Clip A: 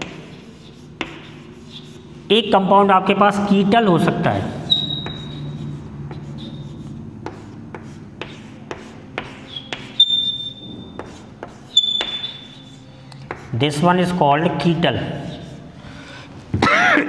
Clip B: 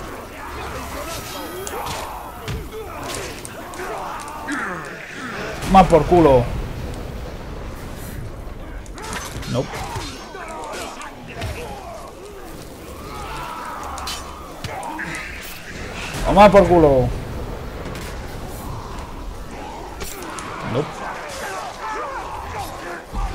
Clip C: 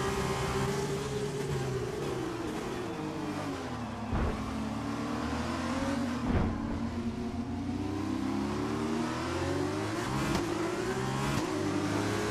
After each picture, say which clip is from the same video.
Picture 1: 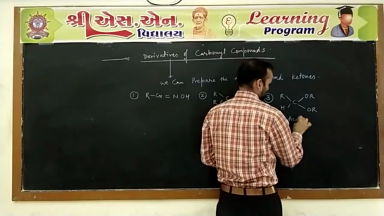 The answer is A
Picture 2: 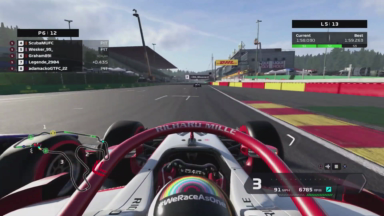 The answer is C